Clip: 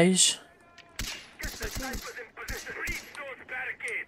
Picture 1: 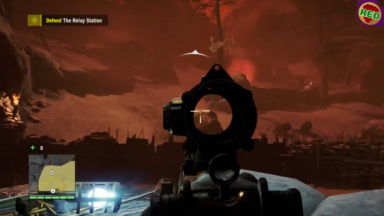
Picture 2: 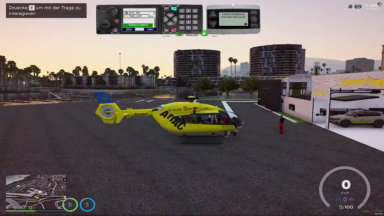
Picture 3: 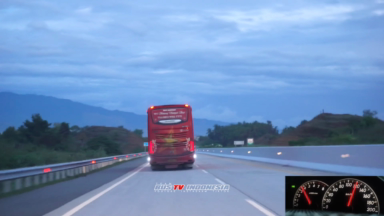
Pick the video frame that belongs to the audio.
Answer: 1